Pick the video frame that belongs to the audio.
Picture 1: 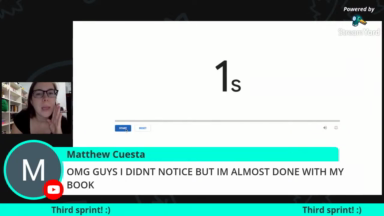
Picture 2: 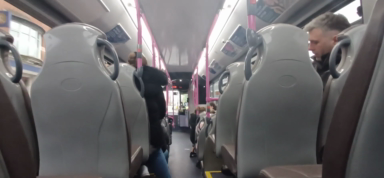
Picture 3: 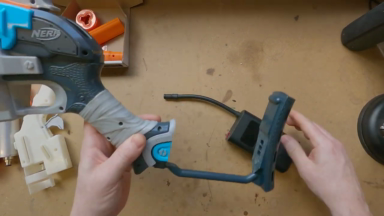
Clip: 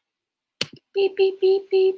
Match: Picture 1